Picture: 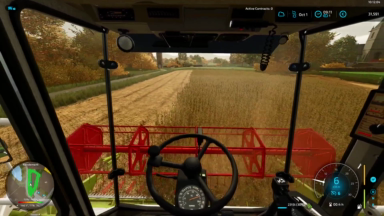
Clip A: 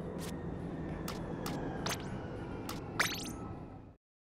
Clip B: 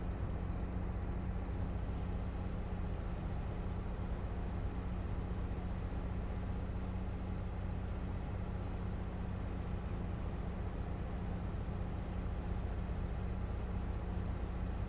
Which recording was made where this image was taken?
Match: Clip B